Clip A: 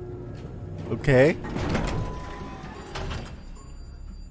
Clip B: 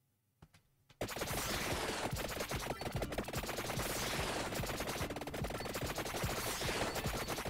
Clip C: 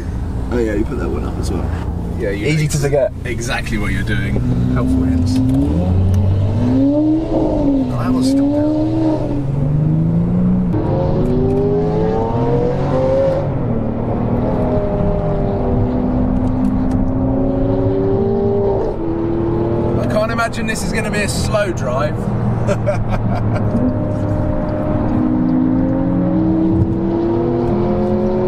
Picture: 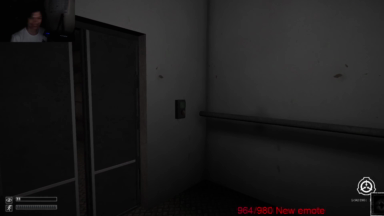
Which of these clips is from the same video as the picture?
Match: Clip A